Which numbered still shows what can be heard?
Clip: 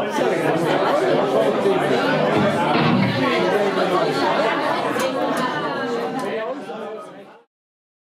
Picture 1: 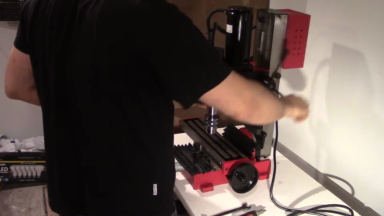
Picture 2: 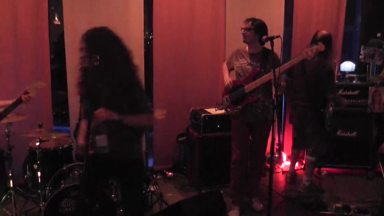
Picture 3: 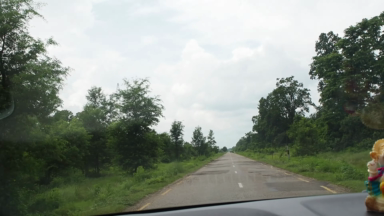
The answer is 2